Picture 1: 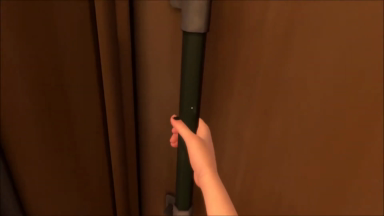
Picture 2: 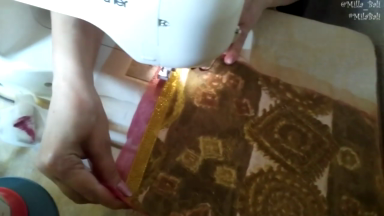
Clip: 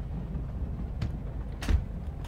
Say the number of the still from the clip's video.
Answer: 1